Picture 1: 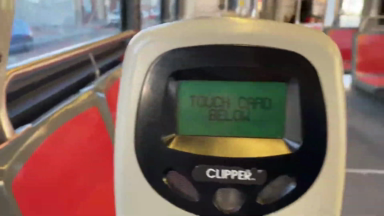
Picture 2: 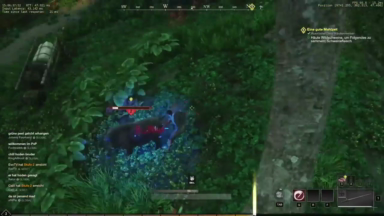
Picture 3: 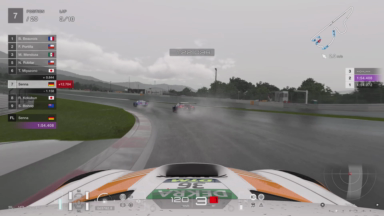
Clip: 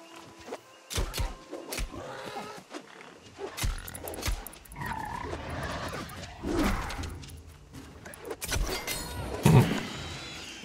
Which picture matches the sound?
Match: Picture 2